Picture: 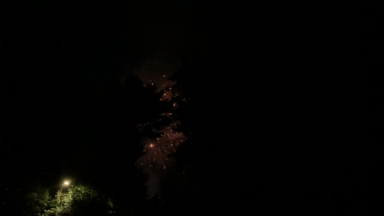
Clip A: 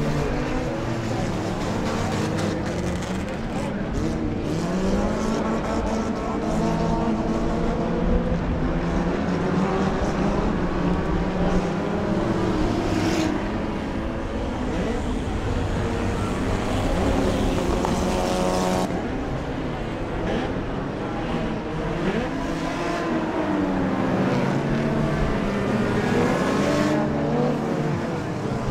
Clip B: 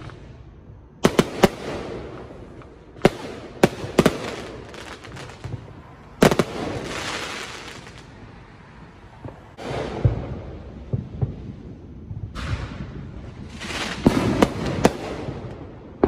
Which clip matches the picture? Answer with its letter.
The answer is B